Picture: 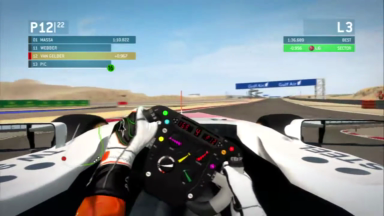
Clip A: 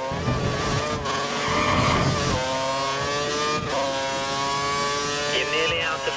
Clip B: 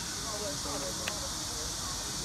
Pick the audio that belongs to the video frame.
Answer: A